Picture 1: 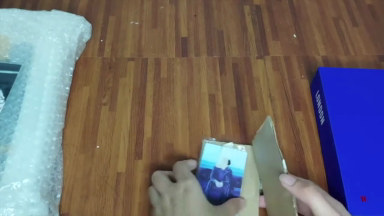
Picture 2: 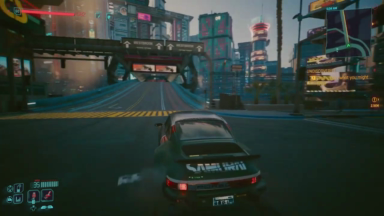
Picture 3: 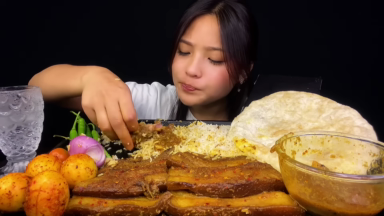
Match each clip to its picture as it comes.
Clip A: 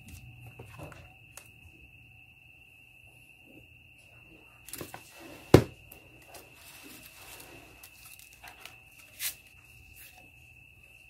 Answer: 1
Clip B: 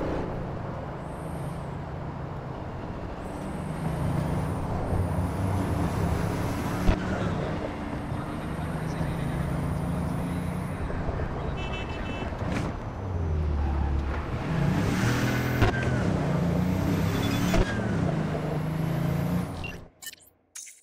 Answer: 2